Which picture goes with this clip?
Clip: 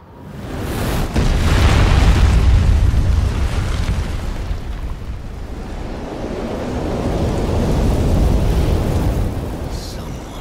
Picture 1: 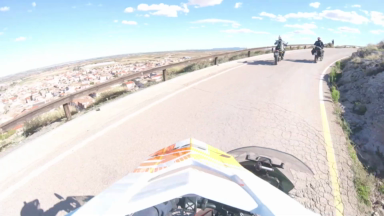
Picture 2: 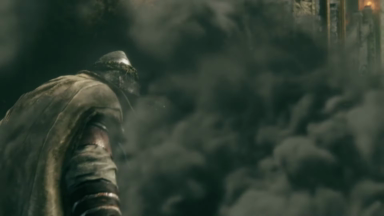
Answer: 2